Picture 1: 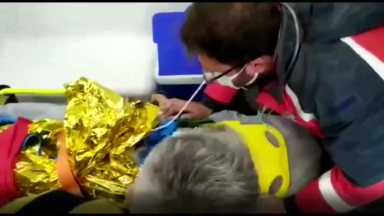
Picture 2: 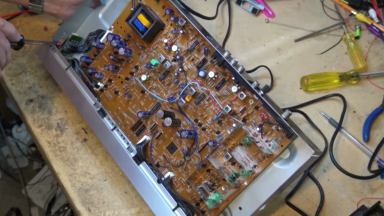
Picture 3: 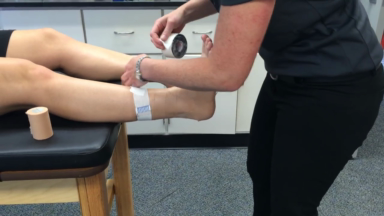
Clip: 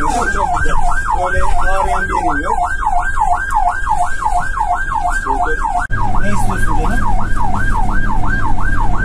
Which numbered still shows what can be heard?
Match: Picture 1